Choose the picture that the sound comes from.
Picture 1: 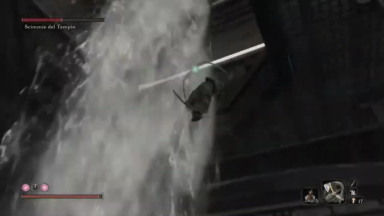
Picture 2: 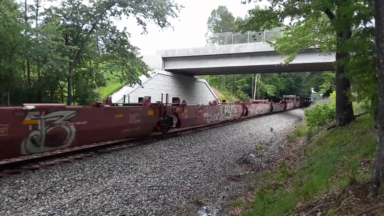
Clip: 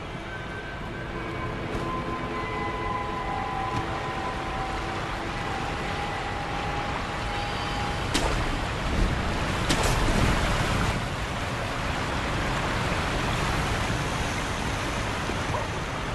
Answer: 1